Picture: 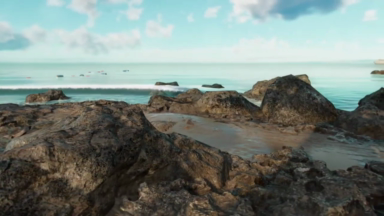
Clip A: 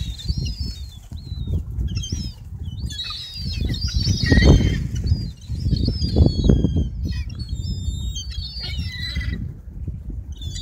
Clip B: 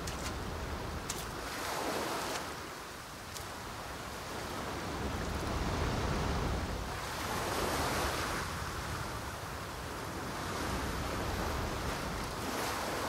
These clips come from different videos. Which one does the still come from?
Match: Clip B